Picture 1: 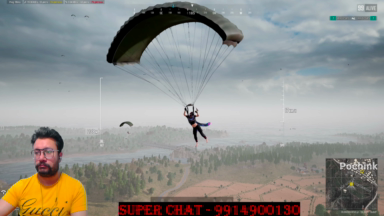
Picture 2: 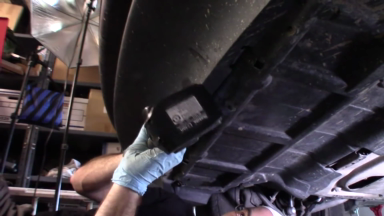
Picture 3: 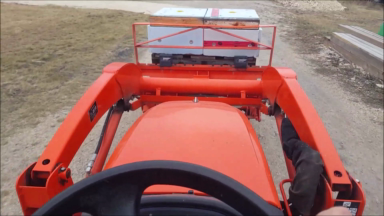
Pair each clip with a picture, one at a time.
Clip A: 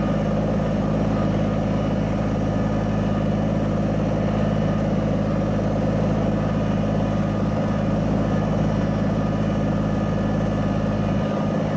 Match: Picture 3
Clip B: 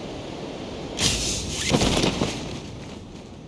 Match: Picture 1